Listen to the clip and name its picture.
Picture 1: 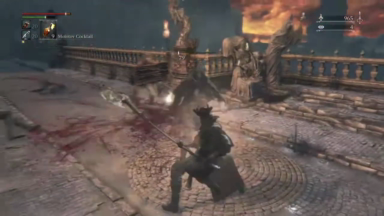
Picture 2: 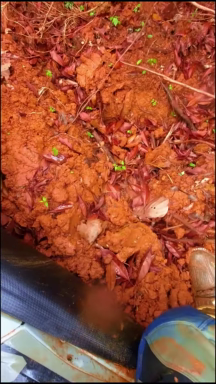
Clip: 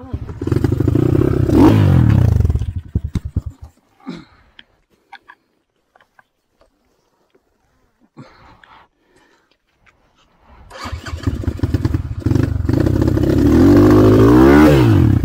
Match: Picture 2